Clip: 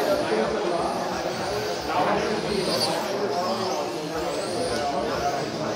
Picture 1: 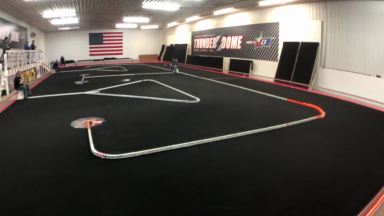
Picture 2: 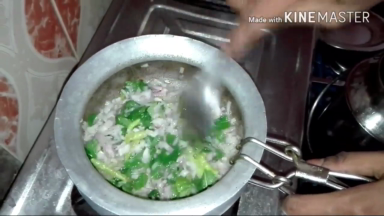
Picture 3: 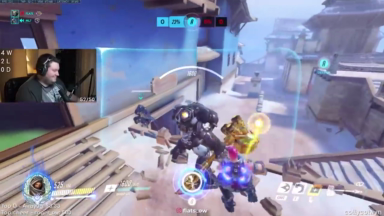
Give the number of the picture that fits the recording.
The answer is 1